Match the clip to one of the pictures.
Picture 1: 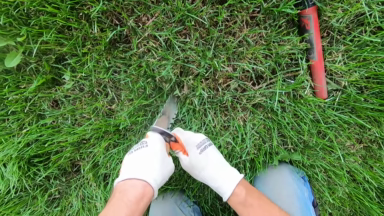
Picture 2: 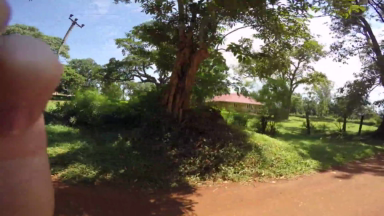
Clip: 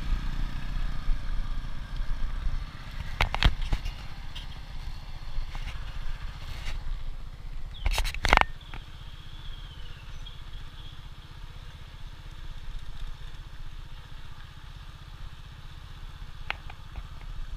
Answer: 2